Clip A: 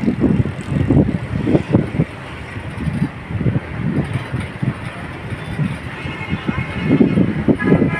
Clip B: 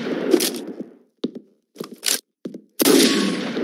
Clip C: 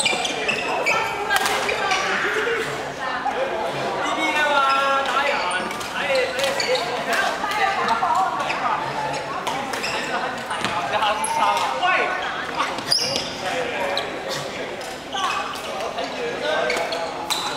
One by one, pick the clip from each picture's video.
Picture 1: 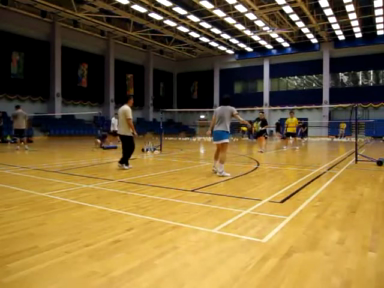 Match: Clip C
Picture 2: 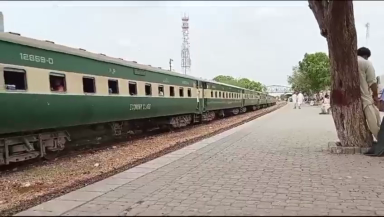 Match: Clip A